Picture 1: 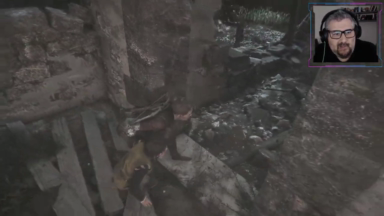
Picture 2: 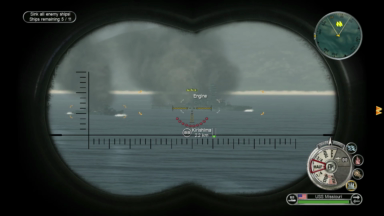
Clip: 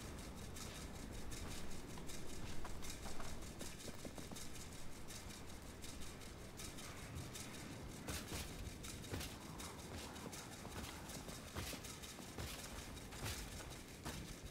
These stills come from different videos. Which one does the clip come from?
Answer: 1